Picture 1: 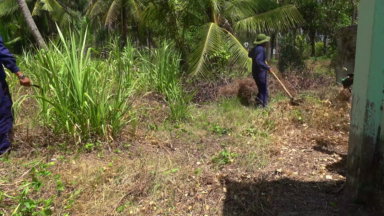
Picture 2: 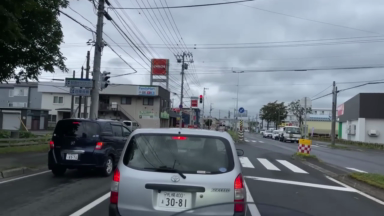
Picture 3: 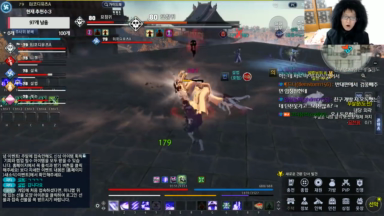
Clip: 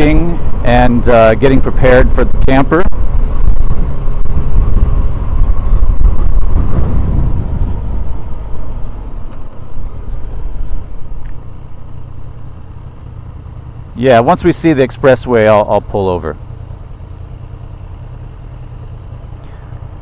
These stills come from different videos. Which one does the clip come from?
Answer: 2